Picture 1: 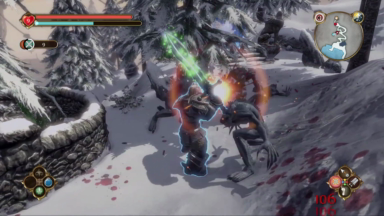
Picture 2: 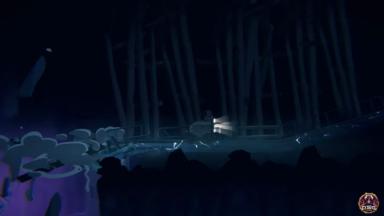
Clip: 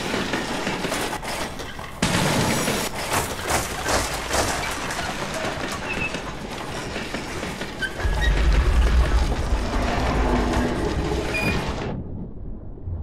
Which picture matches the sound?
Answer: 2